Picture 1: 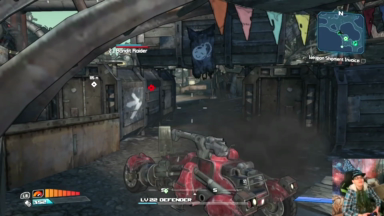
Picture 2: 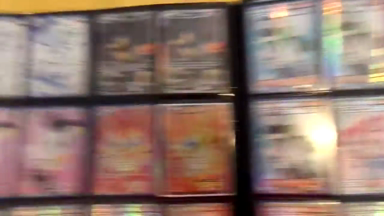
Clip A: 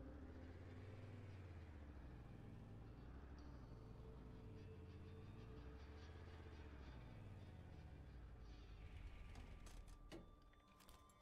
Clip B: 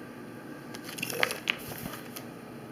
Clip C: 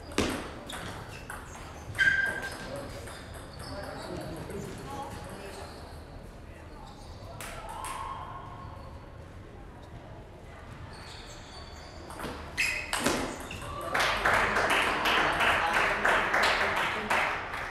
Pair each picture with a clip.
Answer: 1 A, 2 B